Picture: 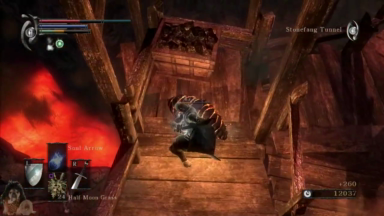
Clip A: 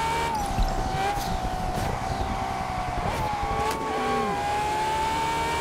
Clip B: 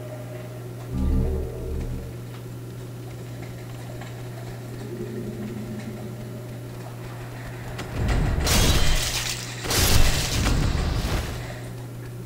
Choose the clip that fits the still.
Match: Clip B